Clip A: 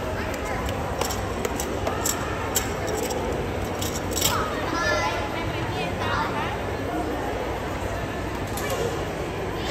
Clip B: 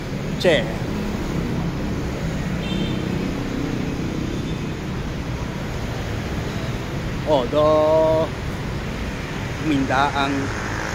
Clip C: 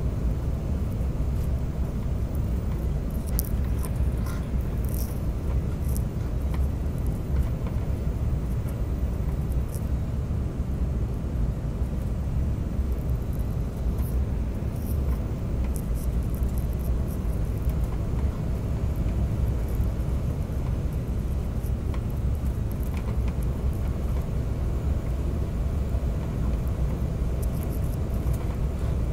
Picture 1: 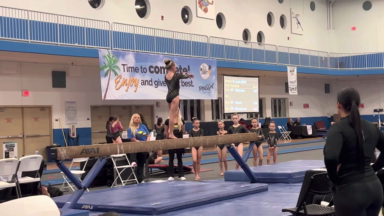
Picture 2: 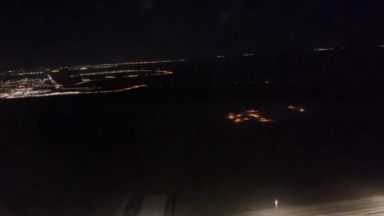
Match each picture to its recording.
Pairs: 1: A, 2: C